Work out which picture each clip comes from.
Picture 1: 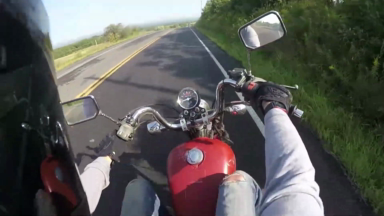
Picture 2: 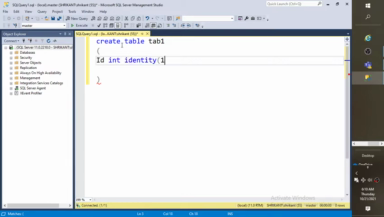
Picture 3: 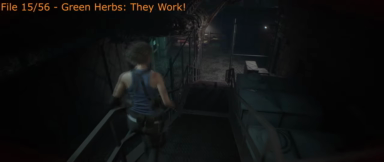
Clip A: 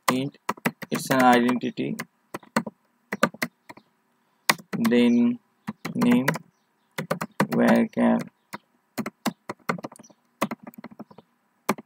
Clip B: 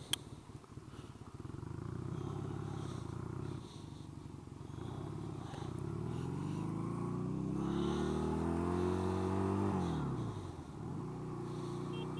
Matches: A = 2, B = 1